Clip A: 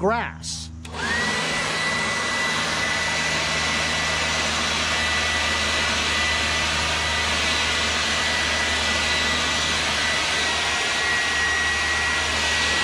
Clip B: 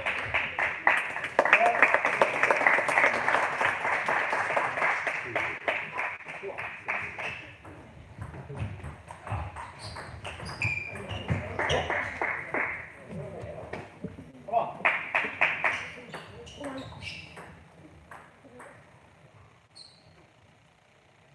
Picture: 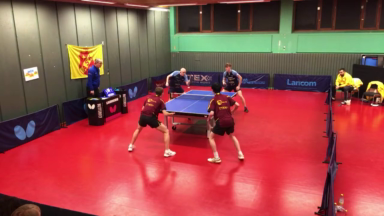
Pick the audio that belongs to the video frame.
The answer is B